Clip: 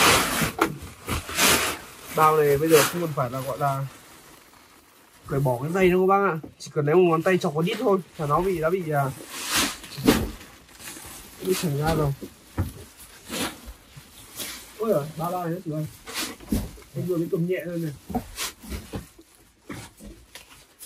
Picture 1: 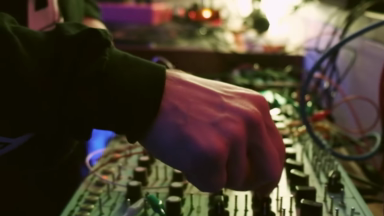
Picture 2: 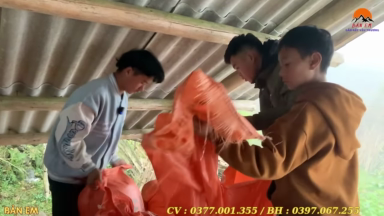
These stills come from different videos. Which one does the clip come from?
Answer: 2